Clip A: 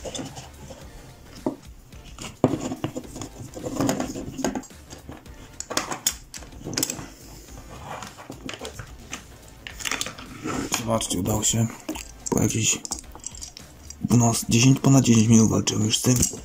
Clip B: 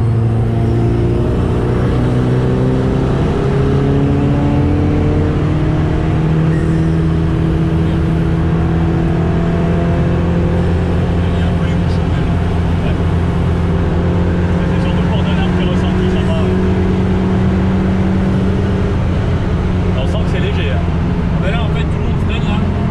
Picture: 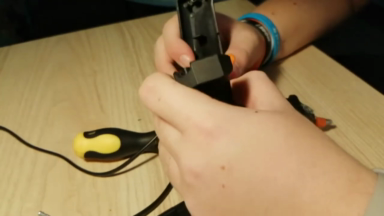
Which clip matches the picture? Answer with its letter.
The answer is A